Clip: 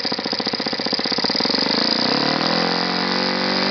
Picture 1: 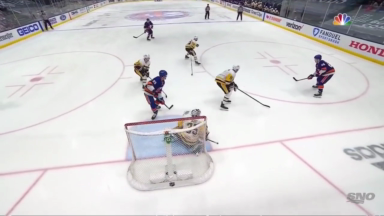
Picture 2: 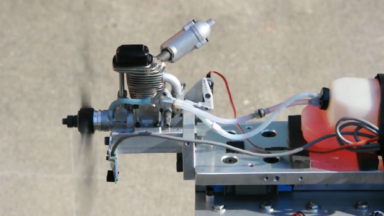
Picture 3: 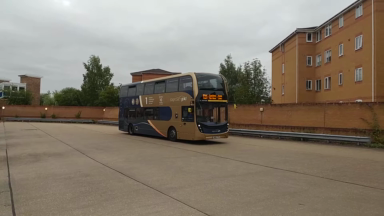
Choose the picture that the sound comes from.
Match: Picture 2